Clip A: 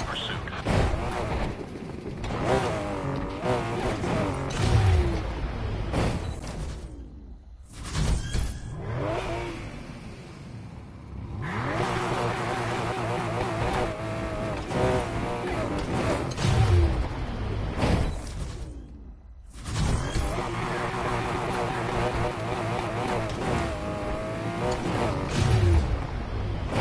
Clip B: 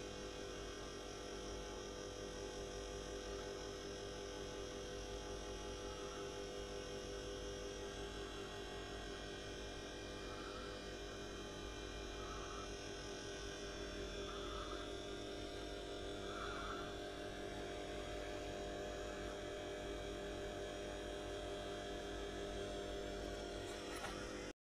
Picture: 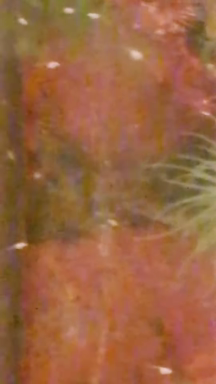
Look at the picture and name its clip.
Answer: B